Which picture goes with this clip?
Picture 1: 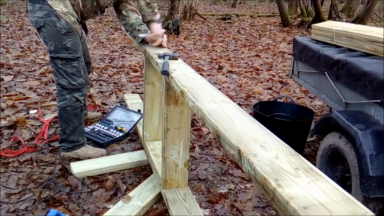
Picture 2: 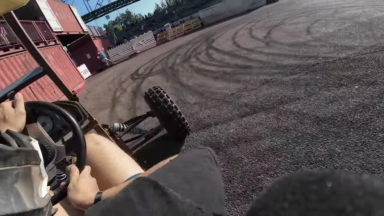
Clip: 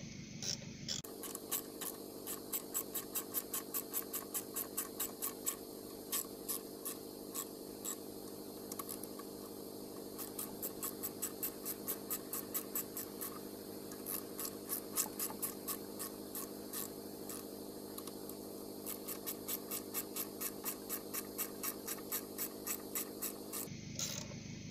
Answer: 1